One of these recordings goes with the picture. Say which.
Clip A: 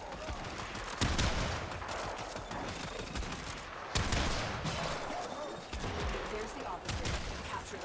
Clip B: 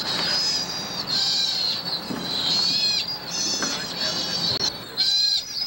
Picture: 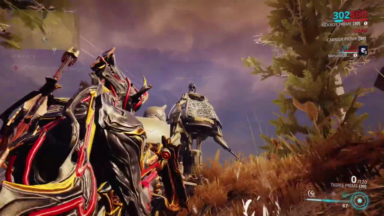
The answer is A